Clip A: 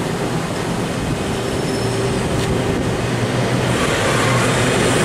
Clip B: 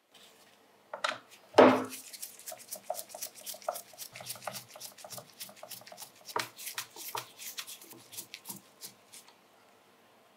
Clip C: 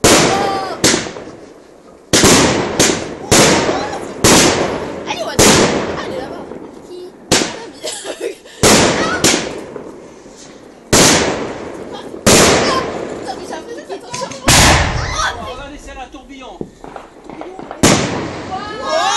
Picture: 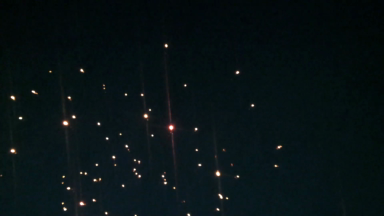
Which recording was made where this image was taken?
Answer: C